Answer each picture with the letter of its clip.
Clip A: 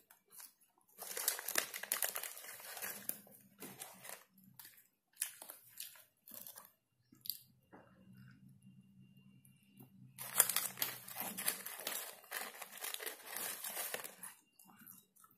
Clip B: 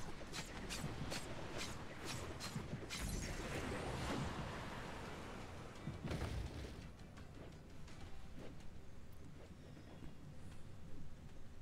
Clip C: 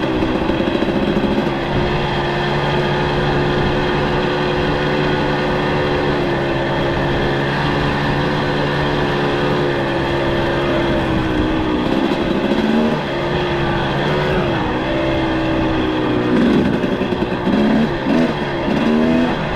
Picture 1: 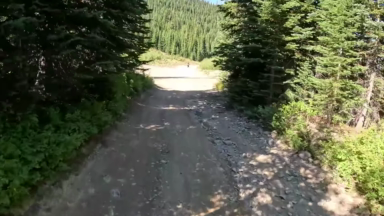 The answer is C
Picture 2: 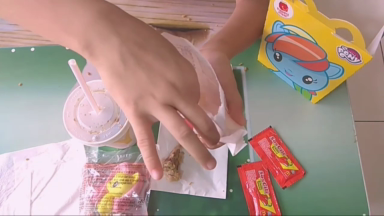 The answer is A